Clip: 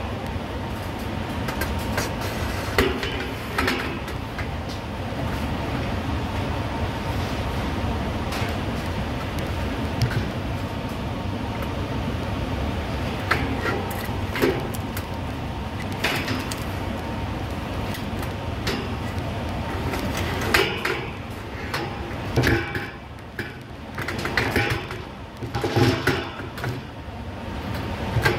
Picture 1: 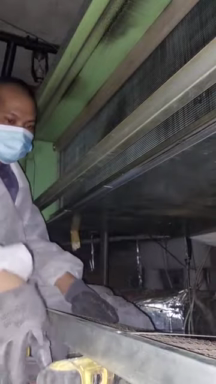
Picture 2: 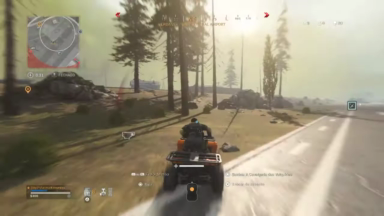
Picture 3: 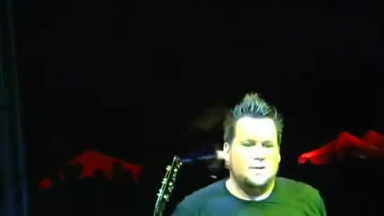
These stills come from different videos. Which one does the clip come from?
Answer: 1